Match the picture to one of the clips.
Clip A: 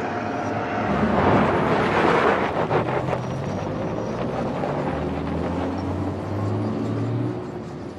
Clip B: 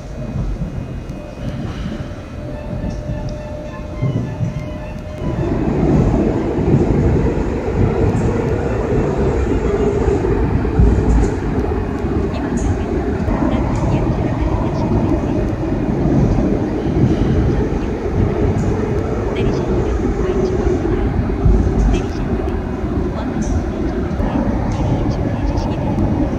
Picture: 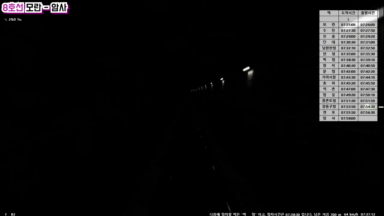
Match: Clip B